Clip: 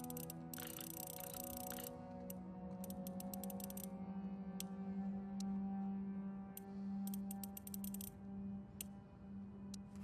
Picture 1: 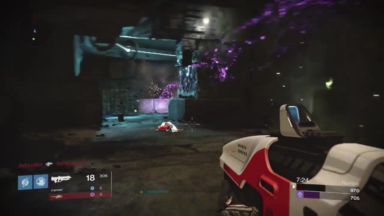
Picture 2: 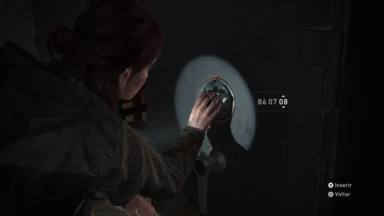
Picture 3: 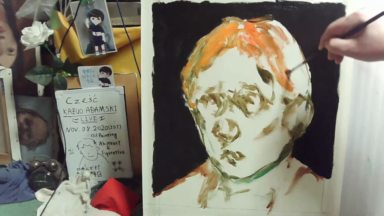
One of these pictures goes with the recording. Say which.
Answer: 2